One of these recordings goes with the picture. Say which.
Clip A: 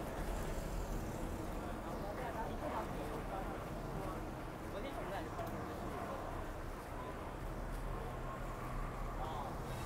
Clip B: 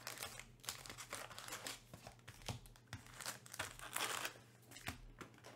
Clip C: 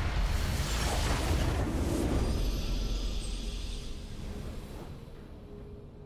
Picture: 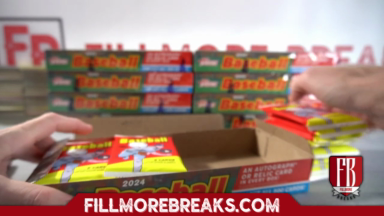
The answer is B